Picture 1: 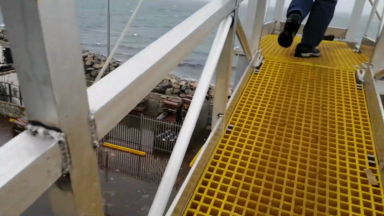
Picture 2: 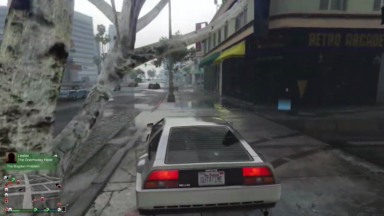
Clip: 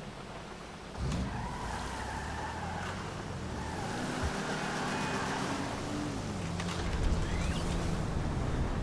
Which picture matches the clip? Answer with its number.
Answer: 2